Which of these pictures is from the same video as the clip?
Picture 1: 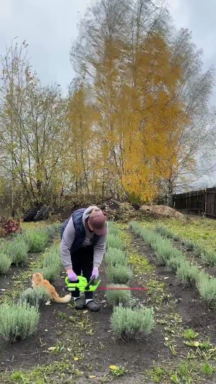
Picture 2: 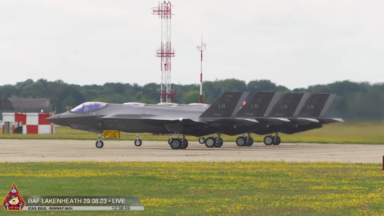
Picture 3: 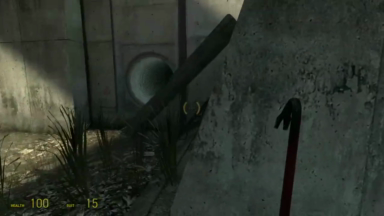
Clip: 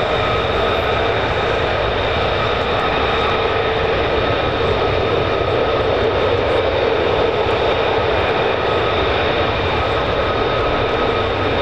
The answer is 2